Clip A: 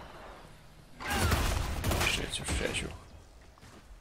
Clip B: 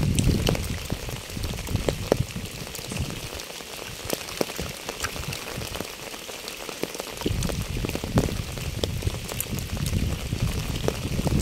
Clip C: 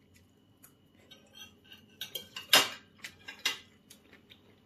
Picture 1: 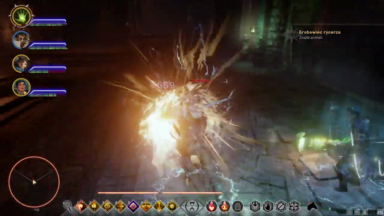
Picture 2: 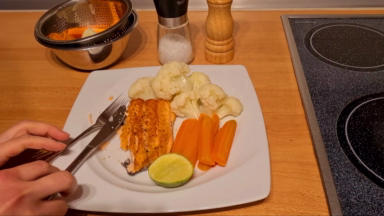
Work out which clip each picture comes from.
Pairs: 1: A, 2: C